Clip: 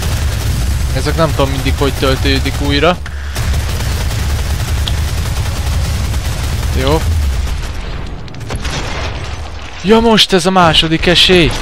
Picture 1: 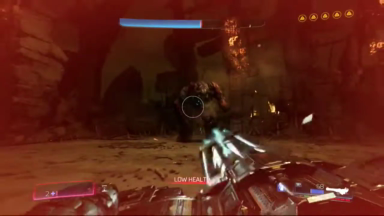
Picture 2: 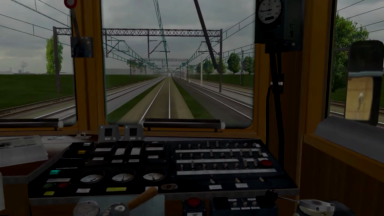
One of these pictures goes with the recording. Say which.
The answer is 1